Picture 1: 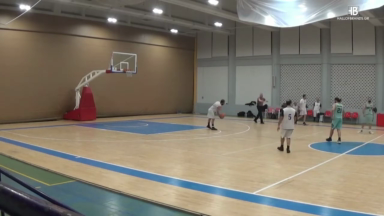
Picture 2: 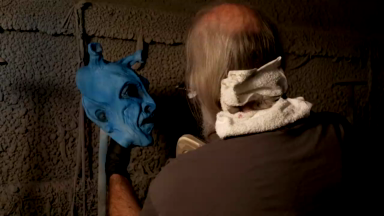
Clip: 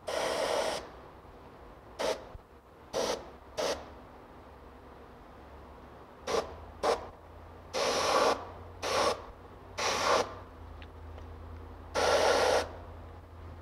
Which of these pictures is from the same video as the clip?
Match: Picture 2